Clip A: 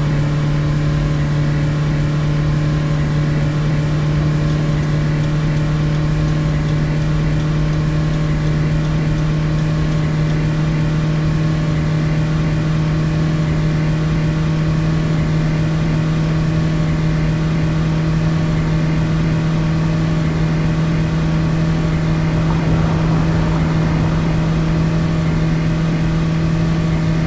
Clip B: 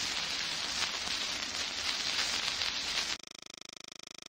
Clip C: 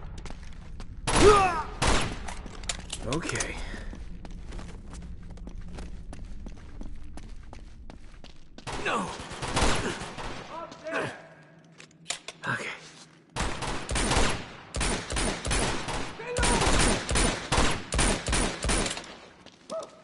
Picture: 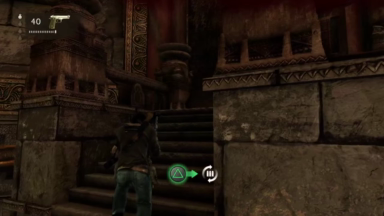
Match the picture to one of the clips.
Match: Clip C